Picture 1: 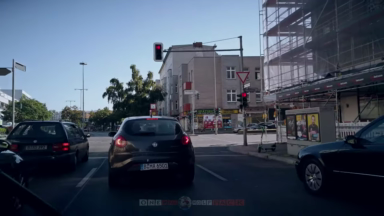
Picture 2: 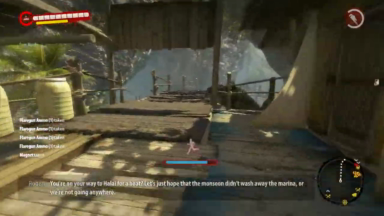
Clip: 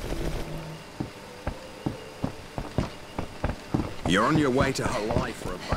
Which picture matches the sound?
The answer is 2